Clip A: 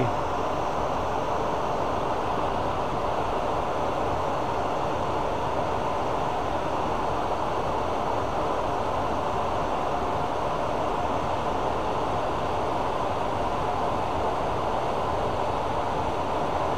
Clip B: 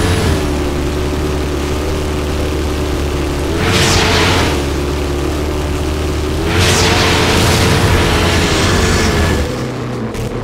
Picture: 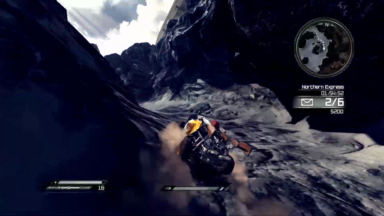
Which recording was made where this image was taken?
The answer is B